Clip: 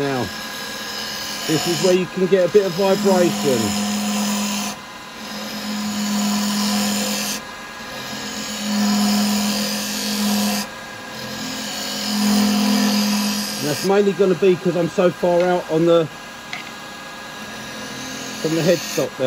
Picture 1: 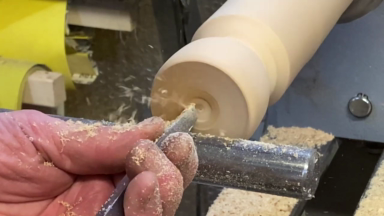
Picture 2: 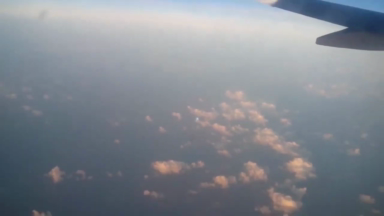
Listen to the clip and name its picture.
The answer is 1